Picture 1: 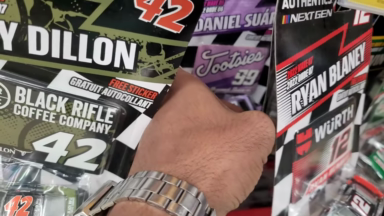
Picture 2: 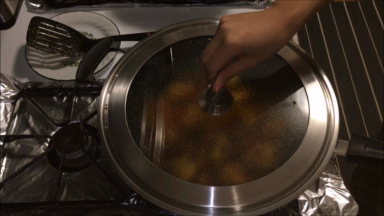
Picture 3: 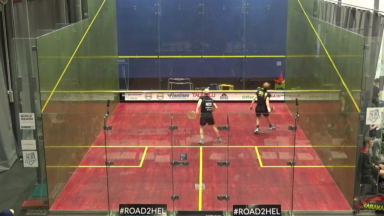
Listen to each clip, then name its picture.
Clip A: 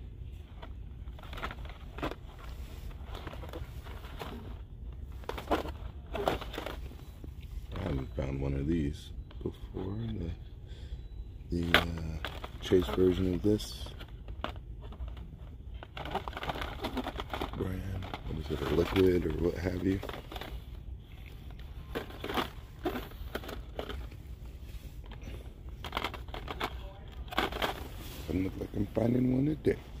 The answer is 1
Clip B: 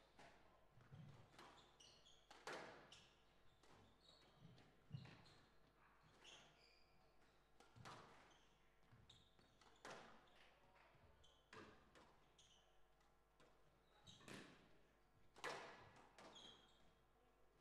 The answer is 3